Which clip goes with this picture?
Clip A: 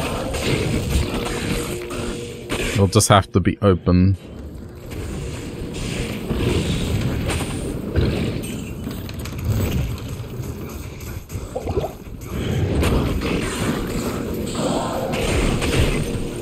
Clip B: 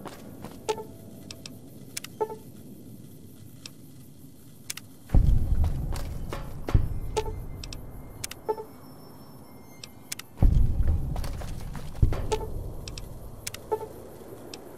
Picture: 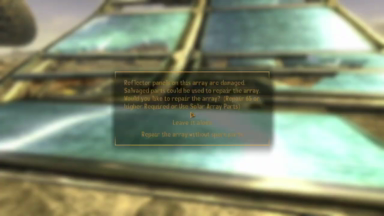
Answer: B